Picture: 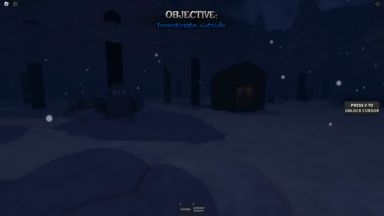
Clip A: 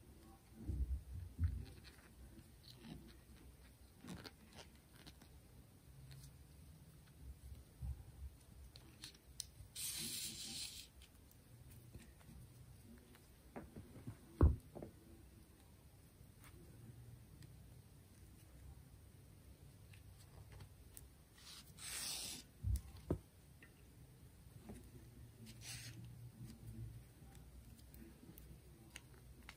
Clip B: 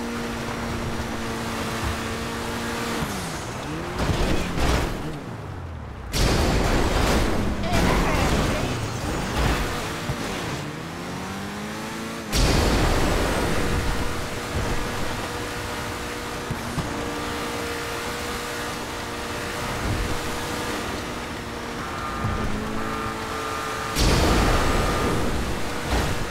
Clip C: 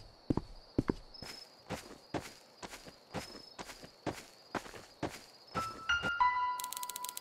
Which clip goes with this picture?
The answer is C